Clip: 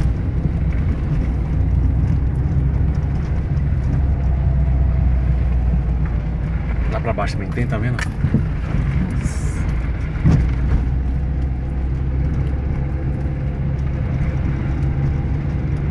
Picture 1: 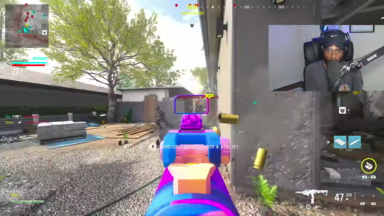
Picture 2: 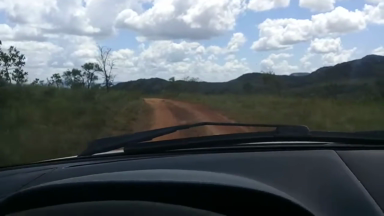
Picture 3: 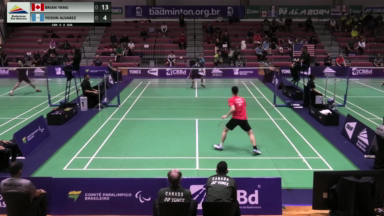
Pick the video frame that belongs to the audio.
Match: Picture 2